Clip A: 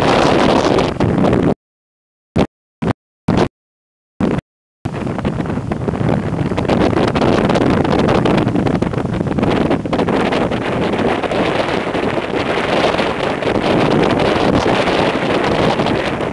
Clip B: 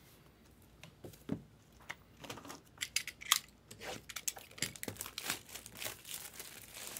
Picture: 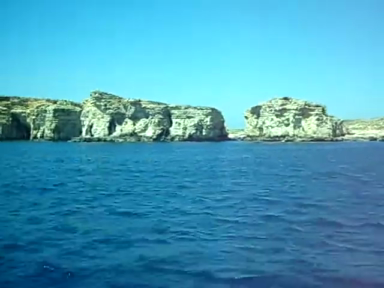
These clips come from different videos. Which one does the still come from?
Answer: A